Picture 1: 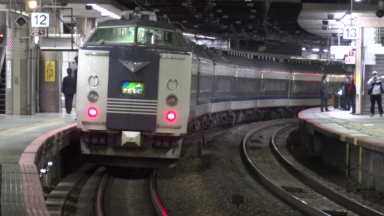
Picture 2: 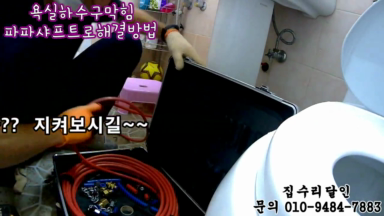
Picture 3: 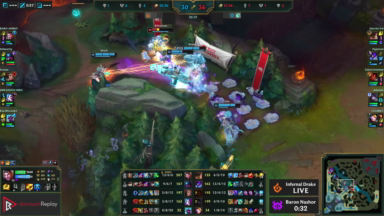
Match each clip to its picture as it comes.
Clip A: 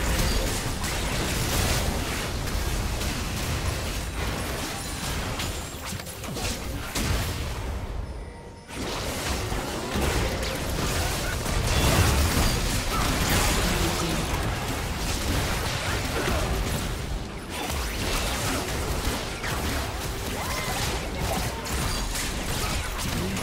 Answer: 3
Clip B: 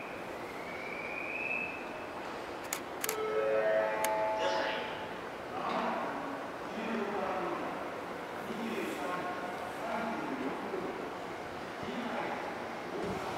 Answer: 1